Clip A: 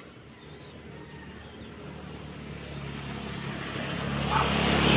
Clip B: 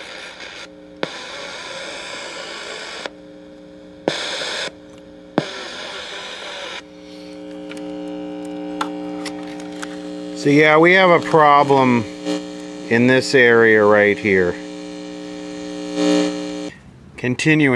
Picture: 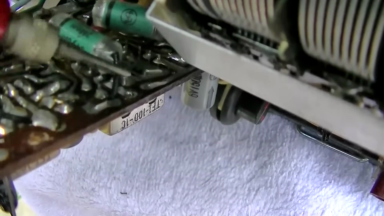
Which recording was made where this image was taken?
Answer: B